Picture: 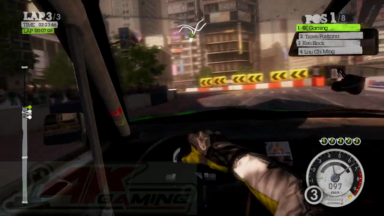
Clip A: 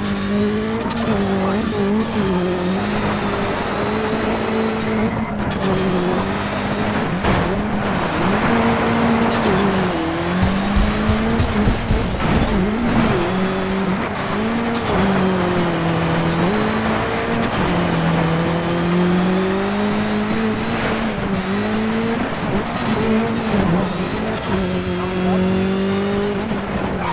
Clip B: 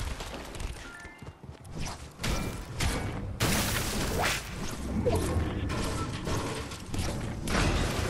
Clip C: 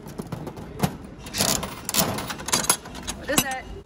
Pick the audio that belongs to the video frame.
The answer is A